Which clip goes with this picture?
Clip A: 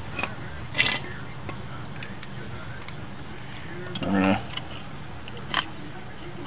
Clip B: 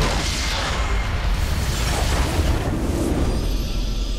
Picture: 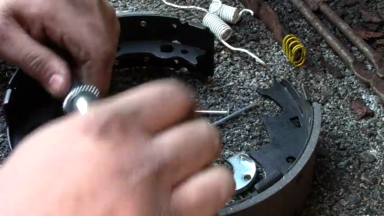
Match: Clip A